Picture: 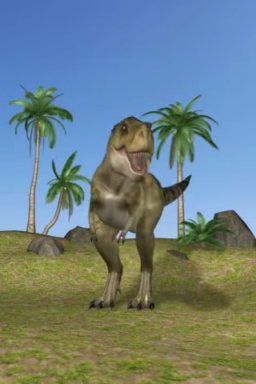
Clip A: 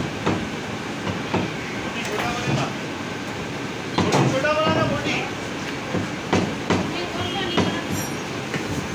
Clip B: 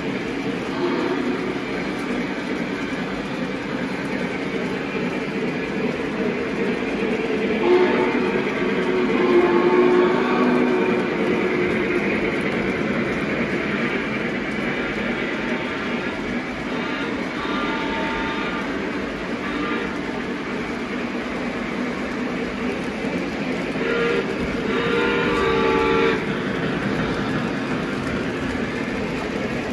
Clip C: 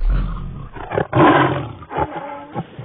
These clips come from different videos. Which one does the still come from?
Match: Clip C